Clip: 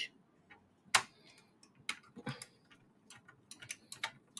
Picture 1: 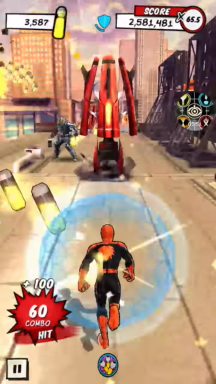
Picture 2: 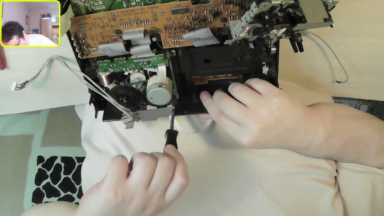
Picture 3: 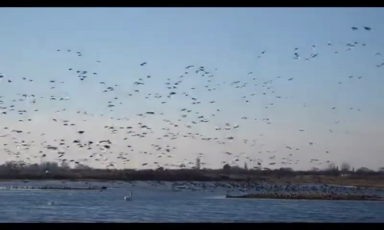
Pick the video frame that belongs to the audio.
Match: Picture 2